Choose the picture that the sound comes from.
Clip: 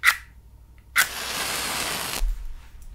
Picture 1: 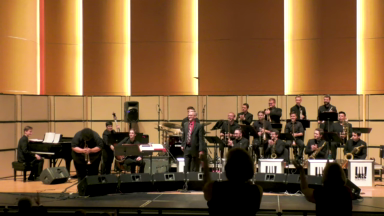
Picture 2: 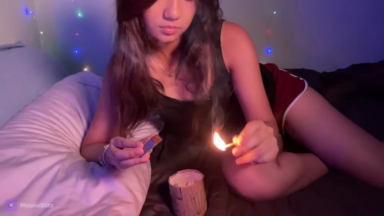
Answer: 2